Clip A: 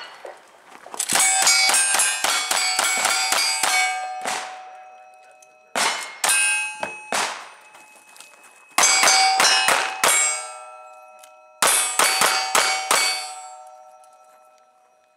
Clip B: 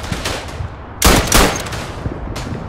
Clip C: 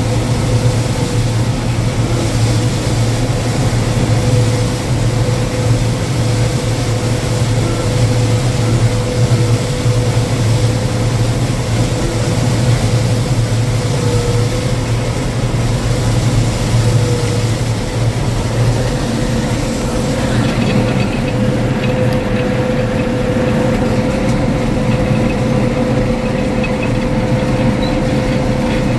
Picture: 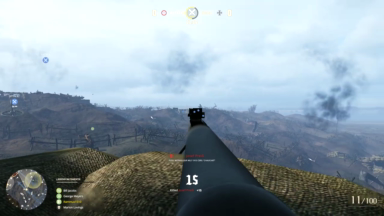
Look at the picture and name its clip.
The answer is B